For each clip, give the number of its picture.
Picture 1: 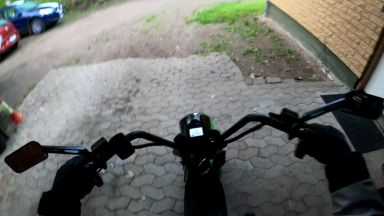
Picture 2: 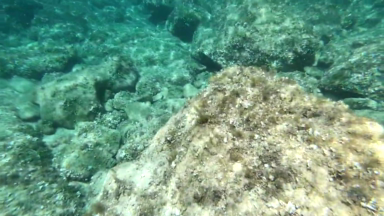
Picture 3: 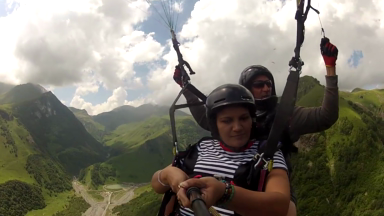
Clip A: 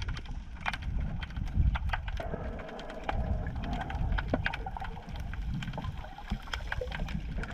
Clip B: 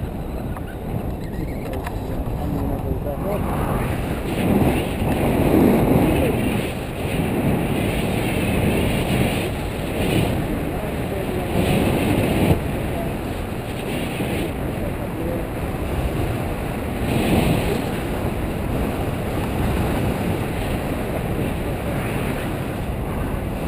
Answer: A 2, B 3